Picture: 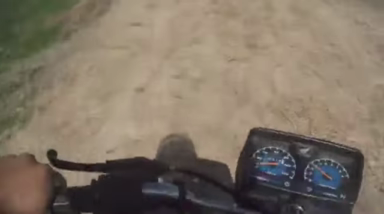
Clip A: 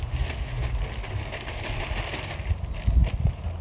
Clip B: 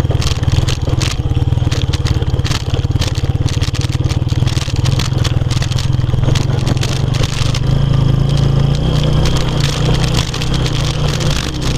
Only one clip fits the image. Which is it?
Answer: B